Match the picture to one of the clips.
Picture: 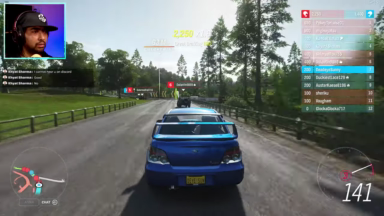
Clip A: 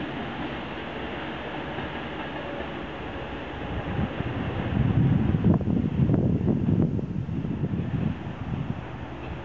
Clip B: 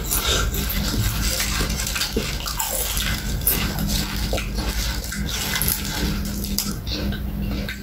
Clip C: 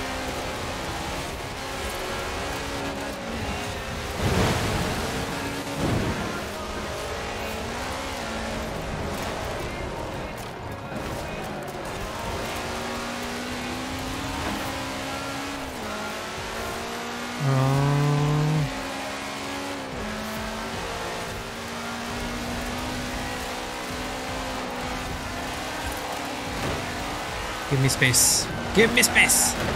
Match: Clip C